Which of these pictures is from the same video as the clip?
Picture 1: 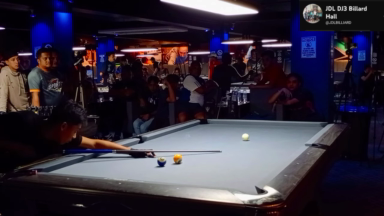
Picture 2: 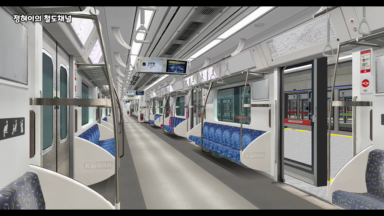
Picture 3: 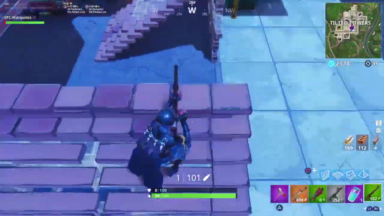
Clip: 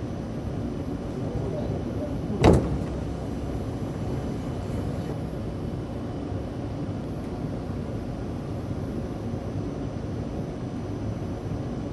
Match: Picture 2